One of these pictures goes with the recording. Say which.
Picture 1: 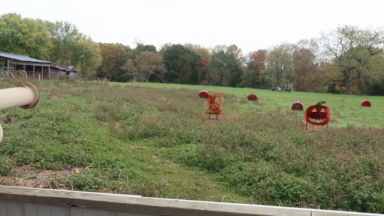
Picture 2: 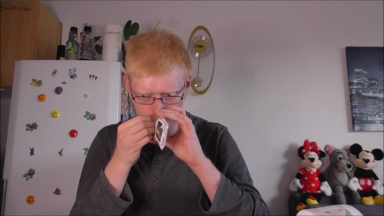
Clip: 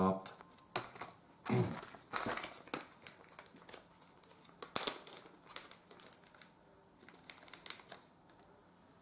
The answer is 2